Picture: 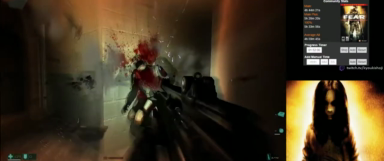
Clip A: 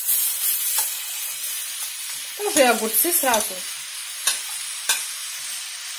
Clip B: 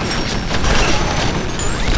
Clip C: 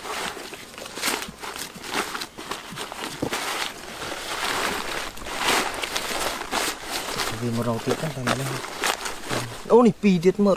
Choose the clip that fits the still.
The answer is B